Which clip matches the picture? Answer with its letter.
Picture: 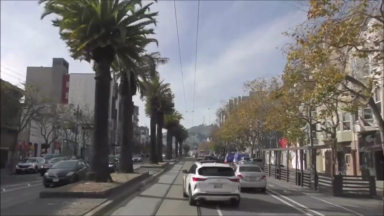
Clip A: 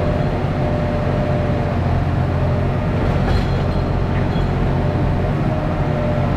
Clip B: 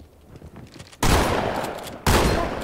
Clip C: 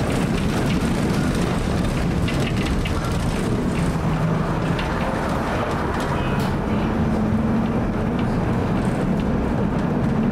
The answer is C